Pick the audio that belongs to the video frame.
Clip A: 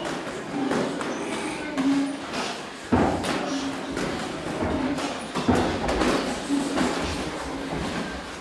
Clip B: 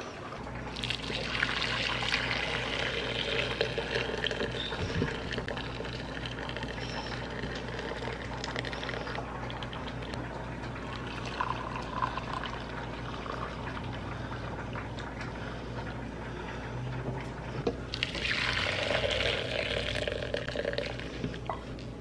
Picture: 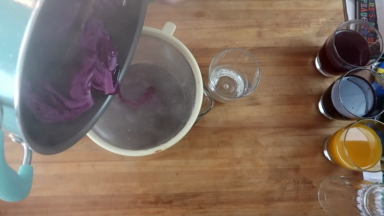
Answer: B